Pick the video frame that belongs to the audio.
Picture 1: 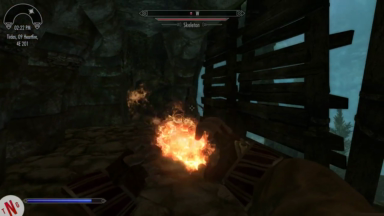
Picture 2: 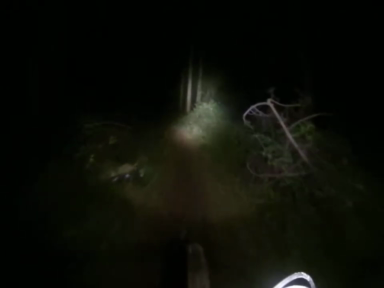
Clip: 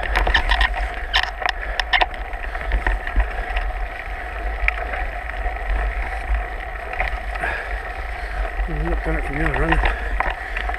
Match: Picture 2